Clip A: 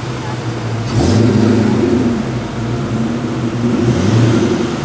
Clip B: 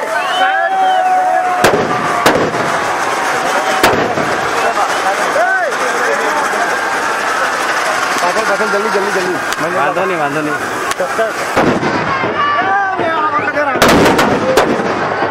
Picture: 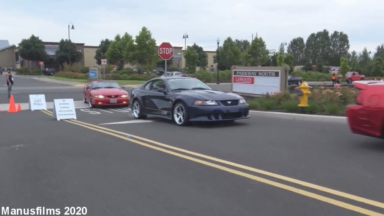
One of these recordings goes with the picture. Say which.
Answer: A